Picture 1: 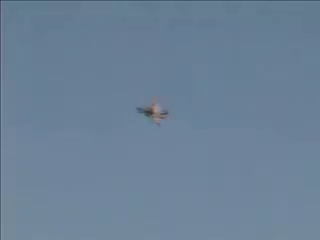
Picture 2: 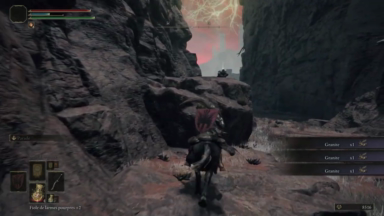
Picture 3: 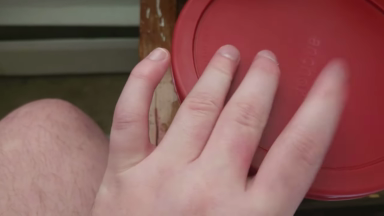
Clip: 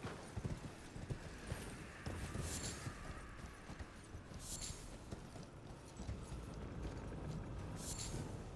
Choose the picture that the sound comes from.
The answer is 2